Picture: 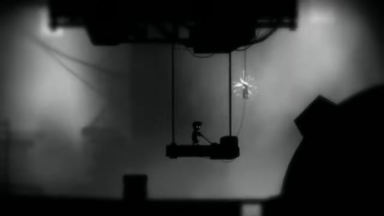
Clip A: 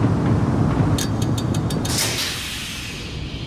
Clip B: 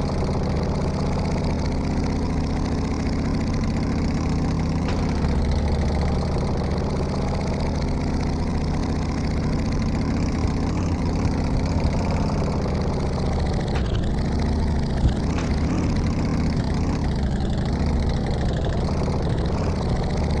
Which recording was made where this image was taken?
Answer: A